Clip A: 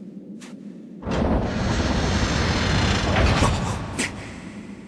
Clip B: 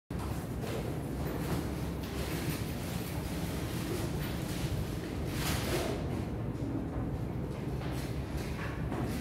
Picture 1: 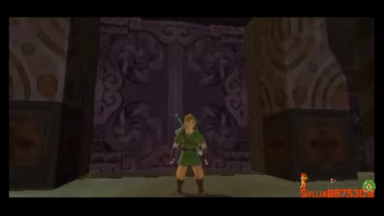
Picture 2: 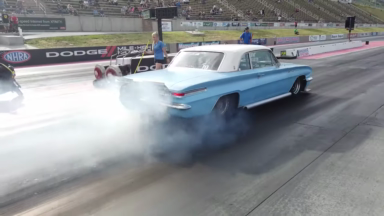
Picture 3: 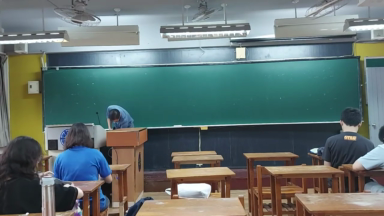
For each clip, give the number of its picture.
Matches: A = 1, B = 3